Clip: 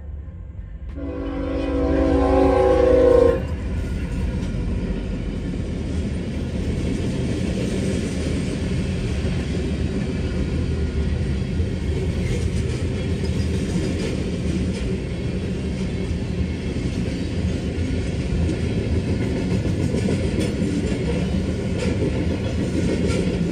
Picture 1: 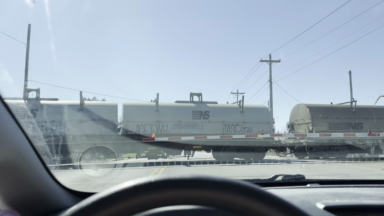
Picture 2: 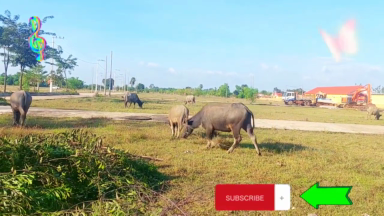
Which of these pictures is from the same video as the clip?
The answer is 1